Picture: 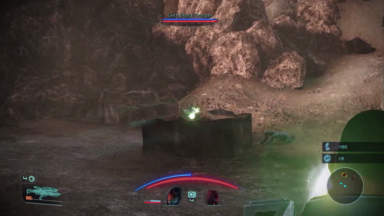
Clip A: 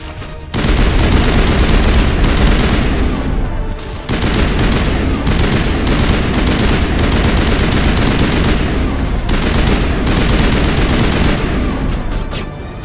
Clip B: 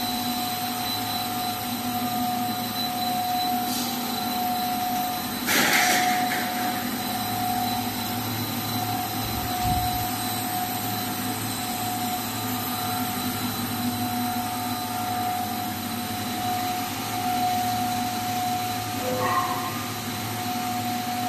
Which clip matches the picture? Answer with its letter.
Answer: A